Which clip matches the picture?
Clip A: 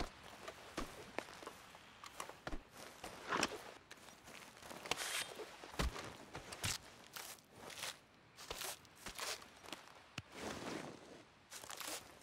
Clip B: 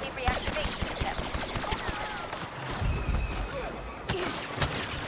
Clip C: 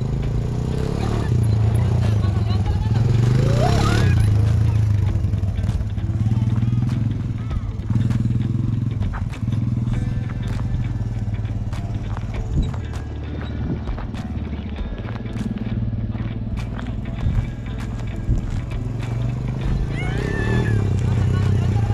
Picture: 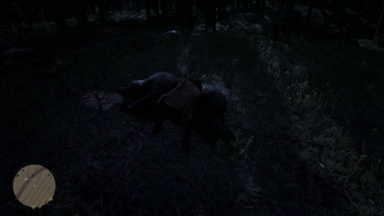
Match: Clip A